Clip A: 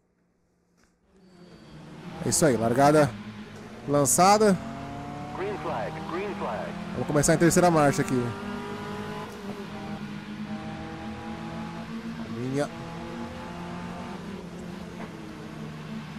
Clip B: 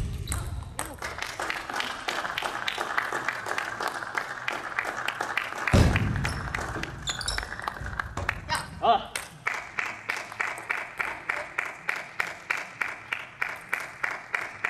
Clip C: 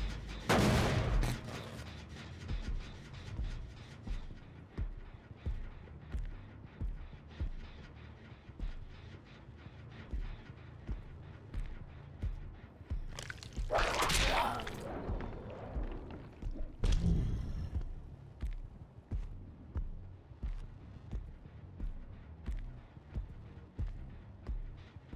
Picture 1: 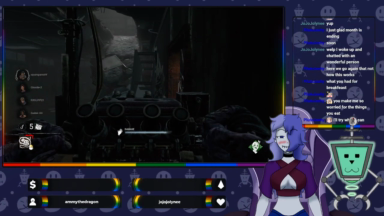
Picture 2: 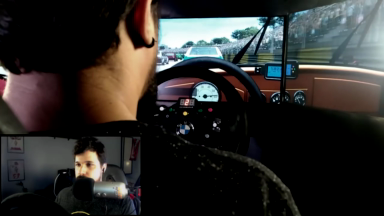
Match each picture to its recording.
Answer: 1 C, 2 A